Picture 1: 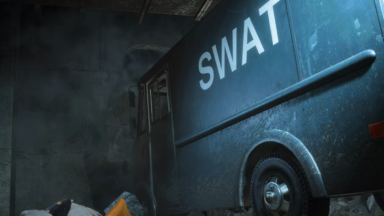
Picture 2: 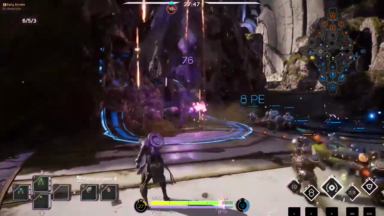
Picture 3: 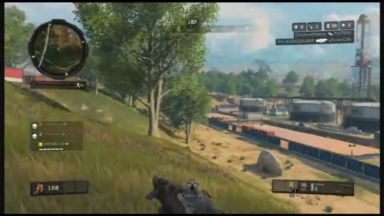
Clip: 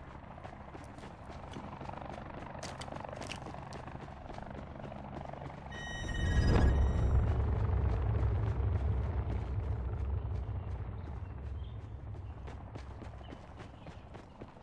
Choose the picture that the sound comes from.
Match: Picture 3